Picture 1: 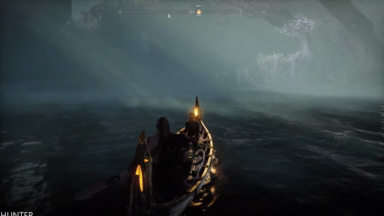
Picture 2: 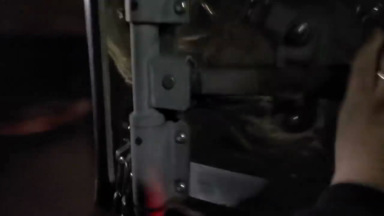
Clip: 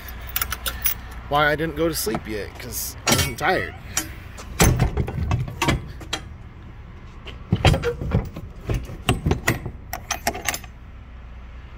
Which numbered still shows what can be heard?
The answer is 2